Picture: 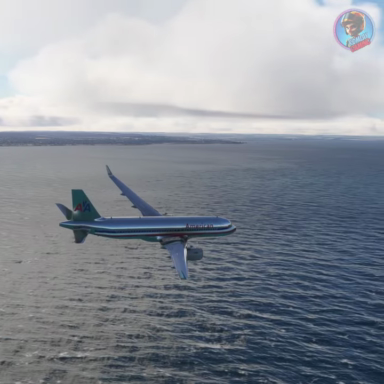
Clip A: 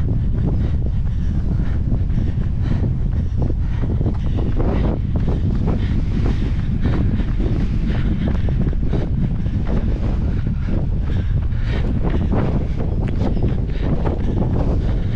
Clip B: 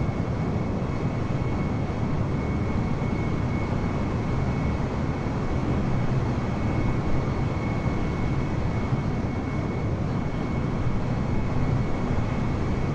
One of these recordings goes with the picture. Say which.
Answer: B